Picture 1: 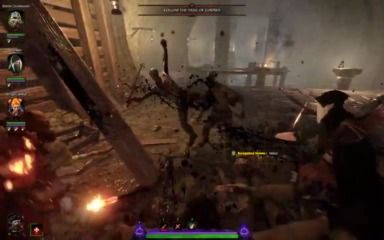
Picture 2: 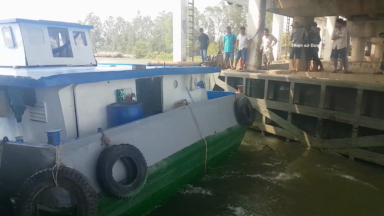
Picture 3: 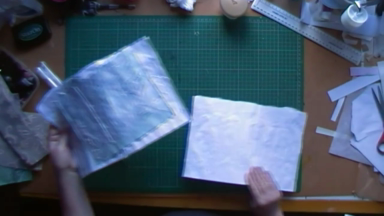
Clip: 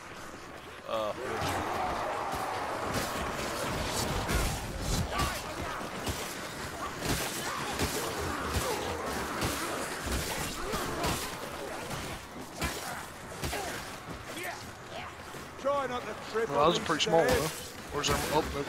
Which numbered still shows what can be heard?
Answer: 1